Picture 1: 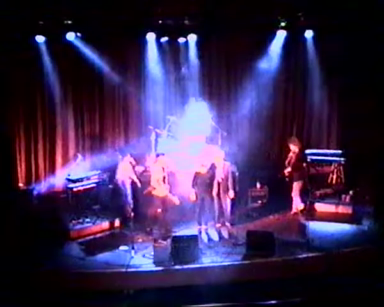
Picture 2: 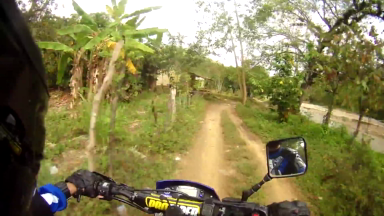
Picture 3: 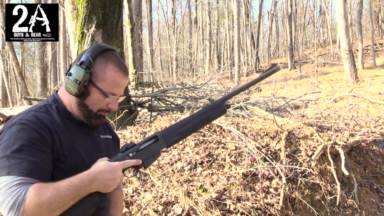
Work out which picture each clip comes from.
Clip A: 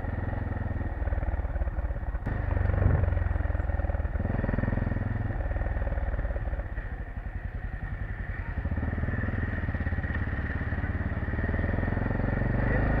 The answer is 2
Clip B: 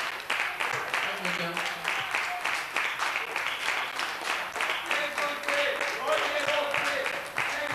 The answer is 1